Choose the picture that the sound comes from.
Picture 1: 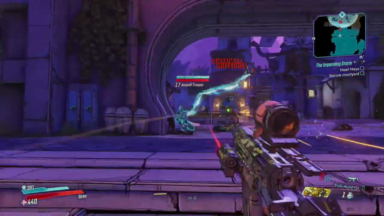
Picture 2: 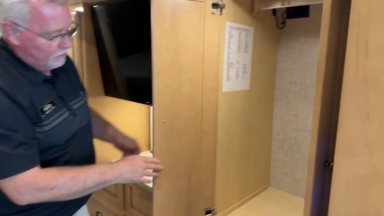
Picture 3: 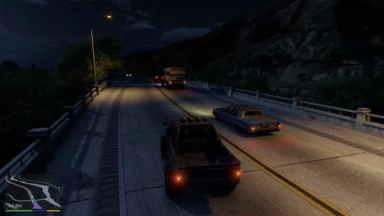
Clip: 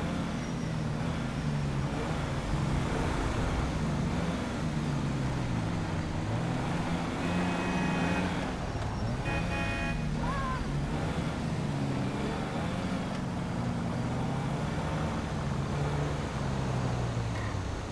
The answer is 3